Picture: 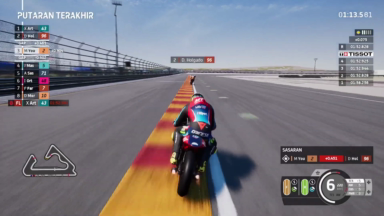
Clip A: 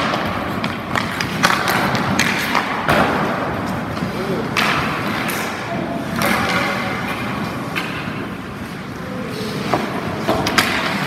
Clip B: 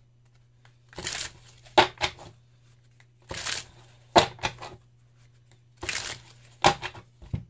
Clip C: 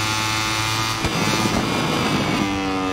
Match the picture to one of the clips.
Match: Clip C